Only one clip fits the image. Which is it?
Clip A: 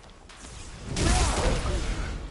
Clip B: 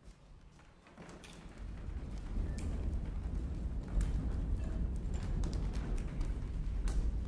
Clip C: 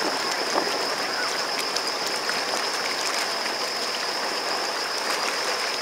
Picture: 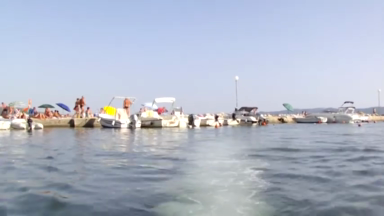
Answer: C